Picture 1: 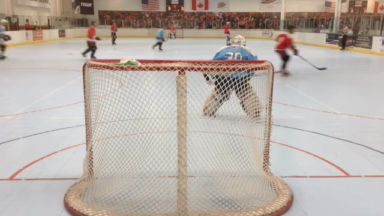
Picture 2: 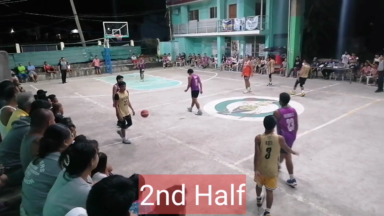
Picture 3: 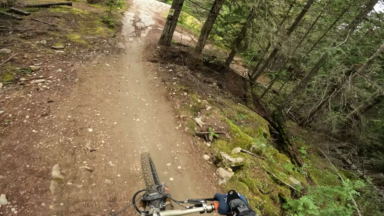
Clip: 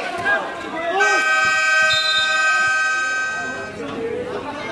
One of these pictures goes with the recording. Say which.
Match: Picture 2